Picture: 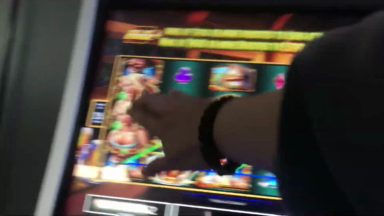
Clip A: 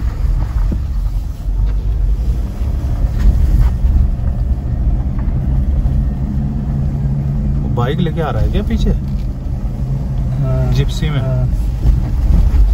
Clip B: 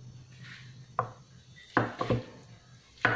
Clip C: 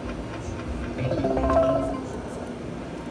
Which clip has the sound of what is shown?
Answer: C